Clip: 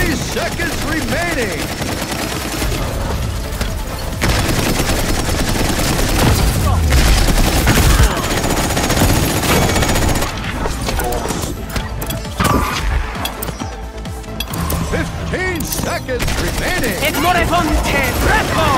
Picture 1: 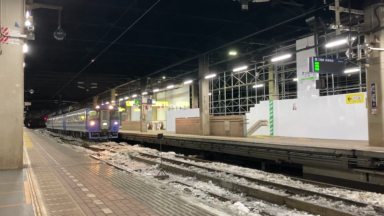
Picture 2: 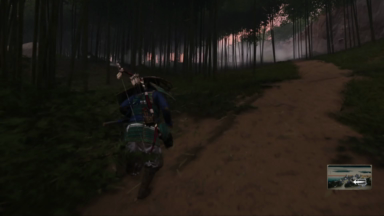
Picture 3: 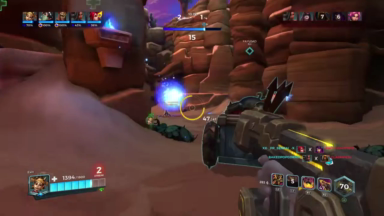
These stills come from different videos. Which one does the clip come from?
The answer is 3